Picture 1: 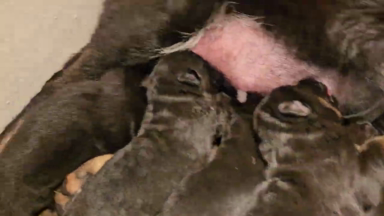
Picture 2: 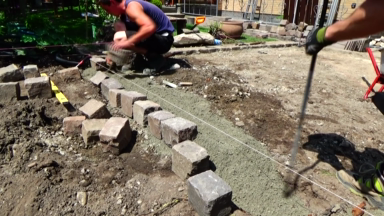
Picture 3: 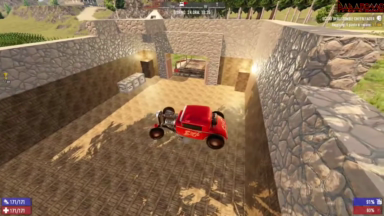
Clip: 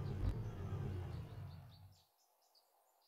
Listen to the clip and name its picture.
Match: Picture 3